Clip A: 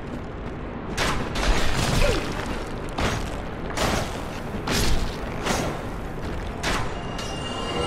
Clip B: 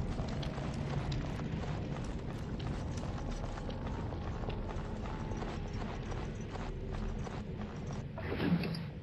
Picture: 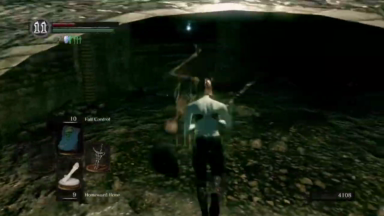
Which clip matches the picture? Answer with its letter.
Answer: A